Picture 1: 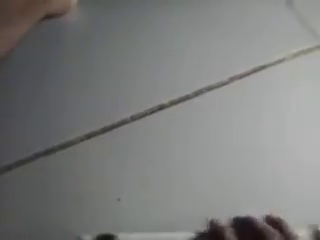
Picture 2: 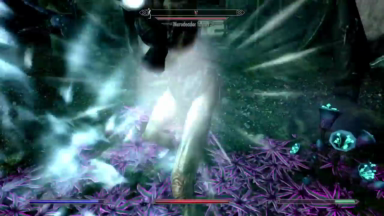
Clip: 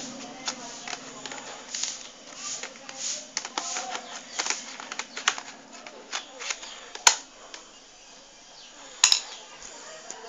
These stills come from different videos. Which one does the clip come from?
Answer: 1